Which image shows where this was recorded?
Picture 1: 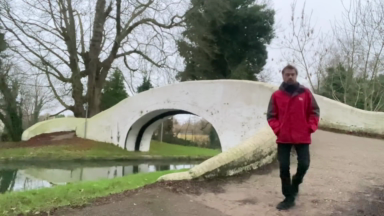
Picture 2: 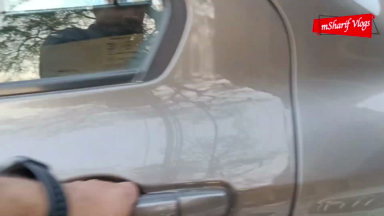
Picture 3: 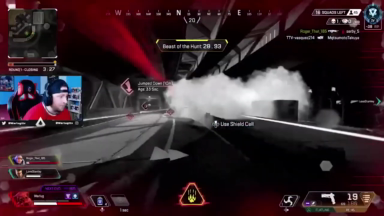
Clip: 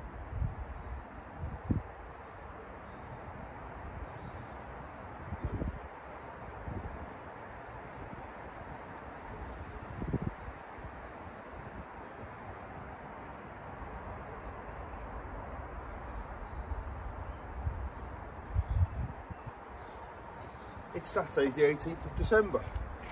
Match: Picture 1